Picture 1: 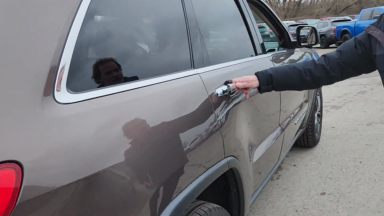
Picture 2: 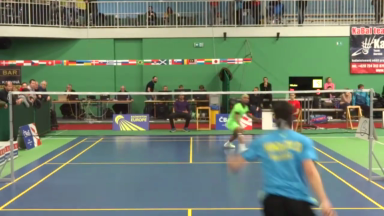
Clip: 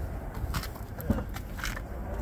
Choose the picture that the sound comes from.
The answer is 1